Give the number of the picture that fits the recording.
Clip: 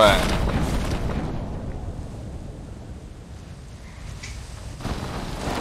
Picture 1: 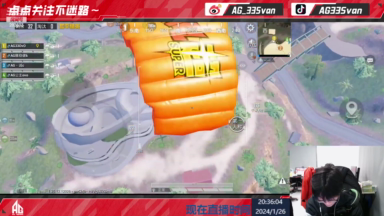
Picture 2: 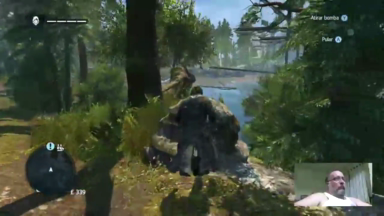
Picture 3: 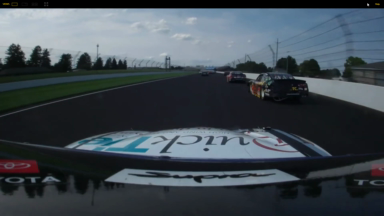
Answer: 1